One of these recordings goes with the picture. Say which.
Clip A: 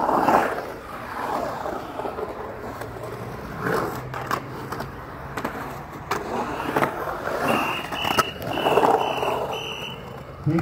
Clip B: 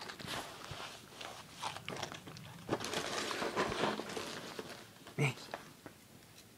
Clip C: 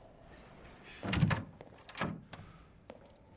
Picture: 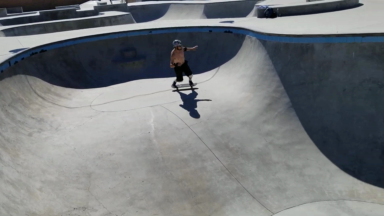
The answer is A